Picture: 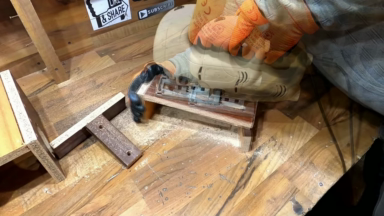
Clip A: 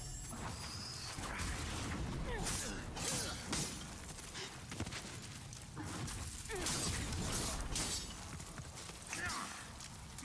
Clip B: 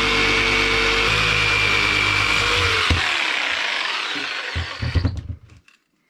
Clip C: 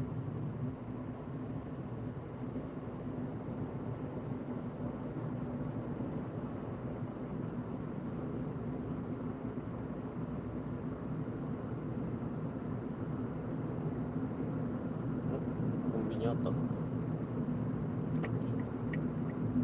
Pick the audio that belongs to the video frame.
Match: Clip B